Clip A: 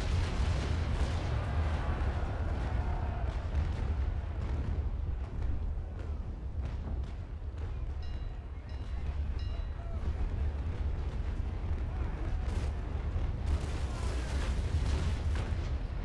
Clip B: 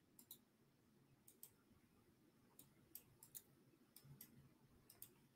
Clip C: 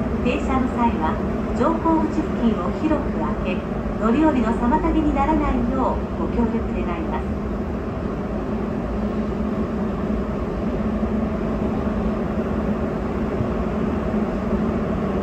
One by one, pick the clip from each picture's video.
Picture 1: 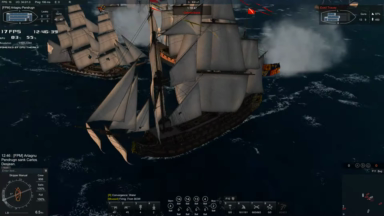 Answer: A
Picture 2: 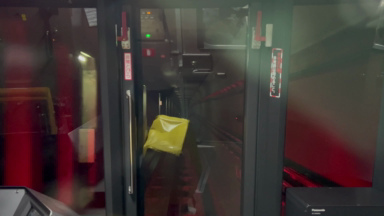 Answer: C